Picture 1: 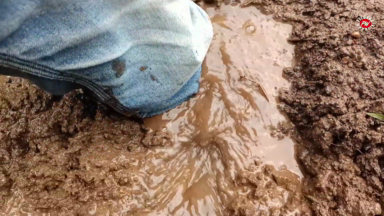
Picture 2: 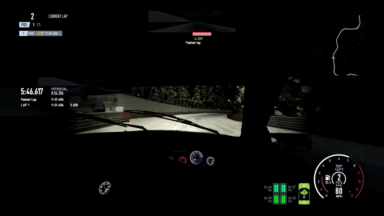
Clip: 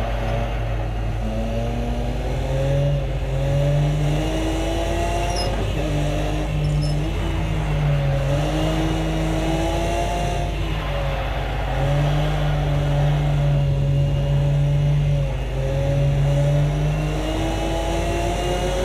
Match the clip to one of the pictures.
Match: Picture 2